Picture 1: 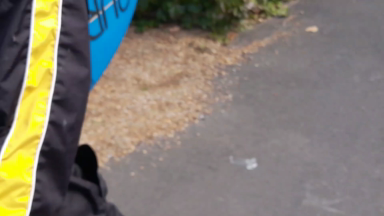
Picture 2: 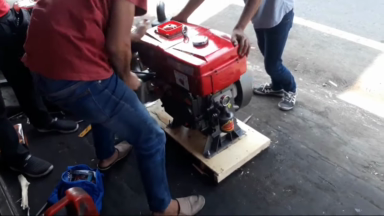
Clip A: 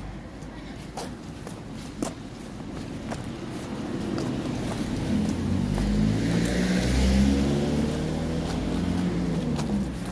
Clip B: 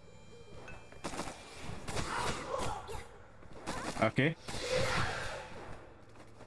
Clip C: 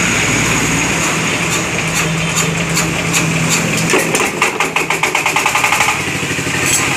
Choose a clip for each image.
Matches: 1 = A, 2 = C